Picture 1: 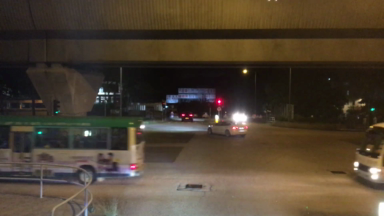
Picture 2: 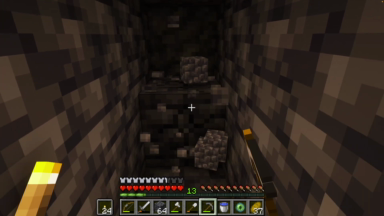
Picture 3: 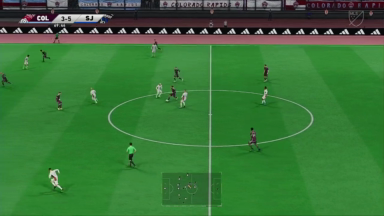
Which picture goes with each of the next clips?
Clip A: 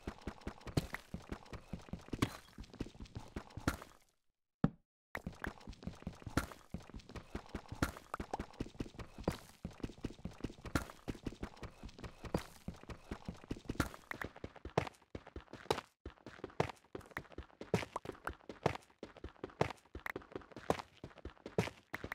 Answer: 2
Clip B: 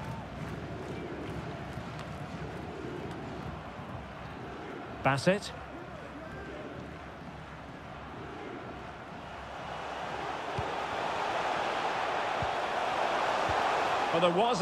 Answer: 3